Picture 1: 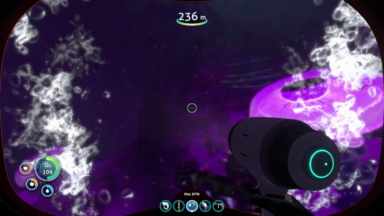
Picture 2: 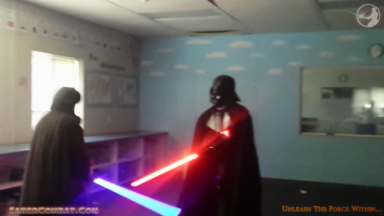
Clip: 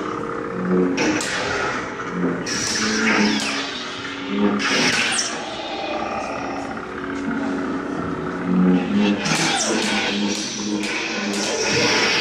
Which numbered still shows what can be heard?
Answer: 2